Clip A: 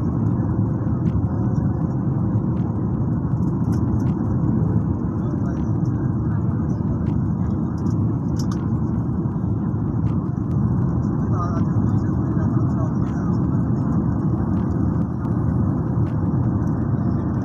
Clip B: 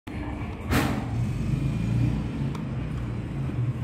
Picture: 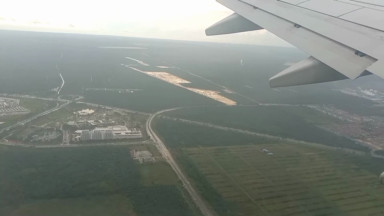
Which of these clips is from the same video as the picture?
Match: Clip A